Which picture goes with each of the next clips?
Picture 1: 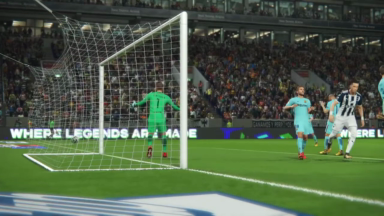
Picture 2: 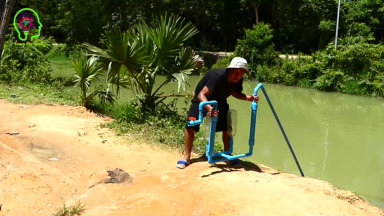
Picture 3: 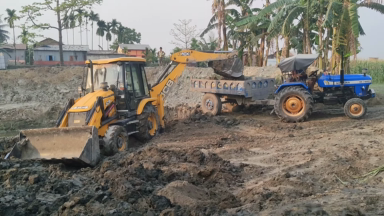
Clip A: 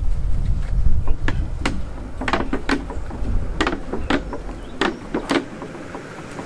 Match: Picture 2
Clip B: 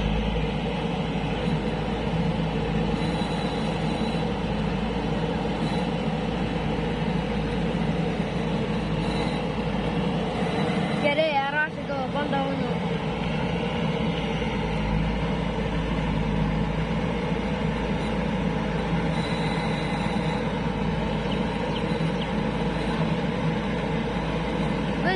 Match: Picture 3